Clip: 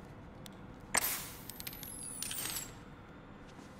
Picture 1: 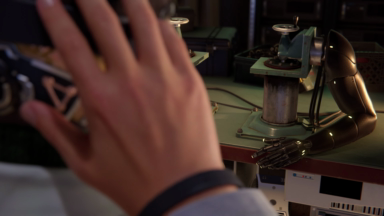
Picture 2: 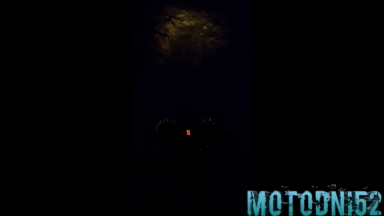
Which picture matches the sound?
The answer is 1